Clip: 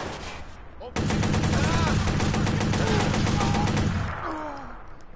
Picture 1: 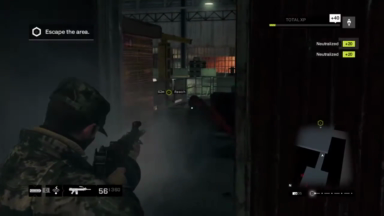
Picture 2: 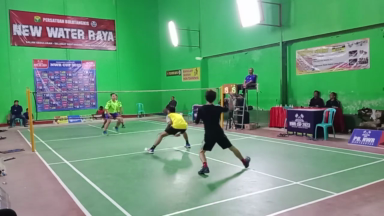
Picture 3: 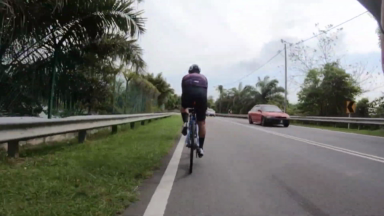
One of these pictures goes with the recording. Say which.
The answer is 1